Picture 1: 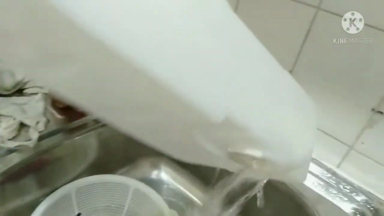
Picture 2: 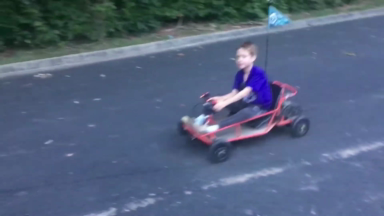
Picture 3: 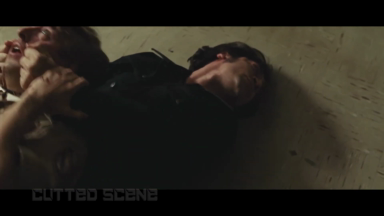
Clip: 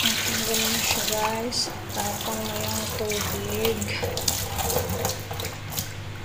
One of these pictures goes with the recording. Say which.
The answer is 1